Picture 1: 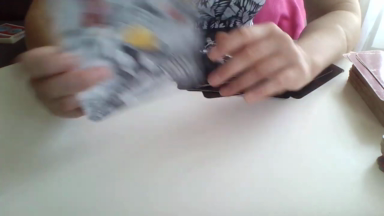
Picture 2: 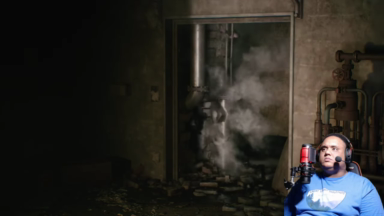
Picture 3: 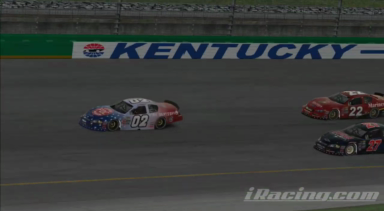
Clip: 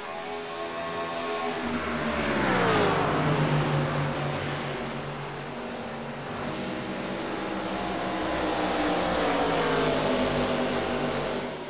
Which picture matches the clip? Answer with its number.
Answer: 3